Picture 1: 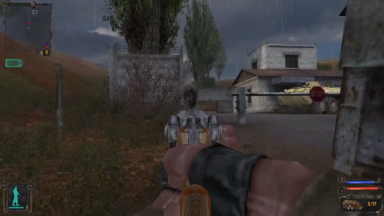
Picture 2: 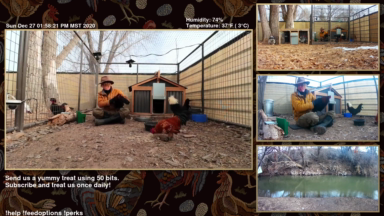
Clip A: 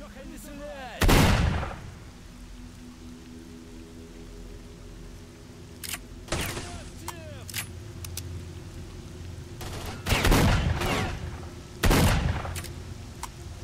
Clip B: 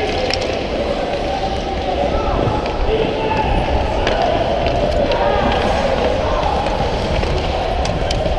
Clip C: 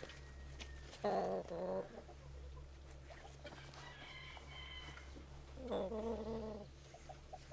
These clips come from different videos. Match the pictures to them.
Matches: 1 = A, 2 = C